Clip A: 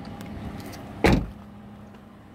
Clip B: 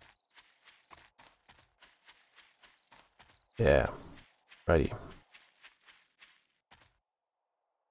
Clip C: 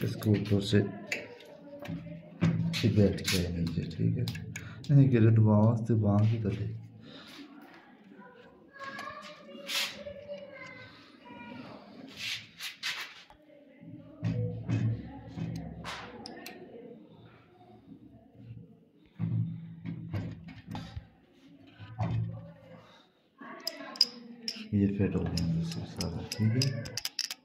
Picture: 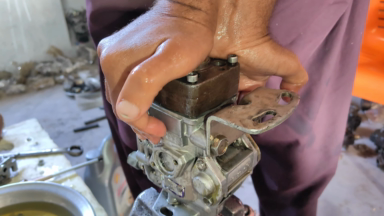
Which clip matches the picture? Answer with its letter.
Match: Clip C